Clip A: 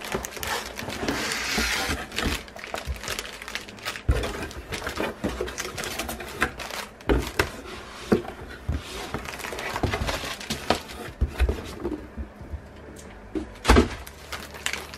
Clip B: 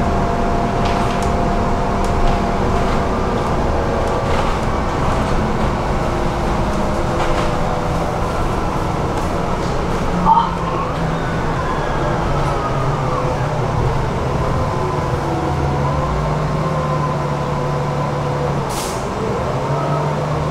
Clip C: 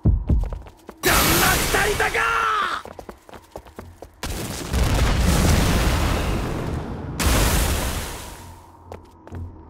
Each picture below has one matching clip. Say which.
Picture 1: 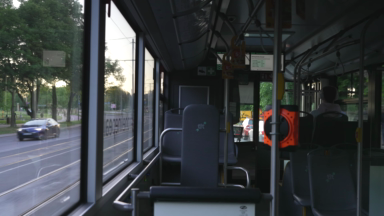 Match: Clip B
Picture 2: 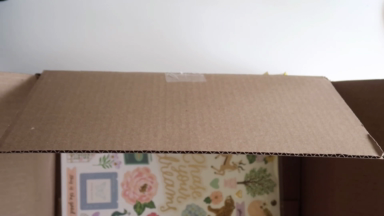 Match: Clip A